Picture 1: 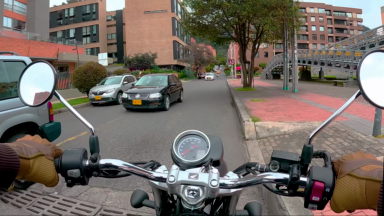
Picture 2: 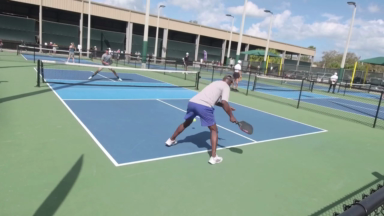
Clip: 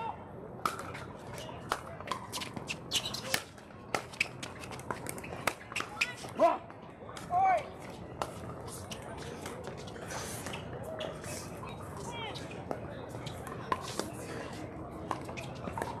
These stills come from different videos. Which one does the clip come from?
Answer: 2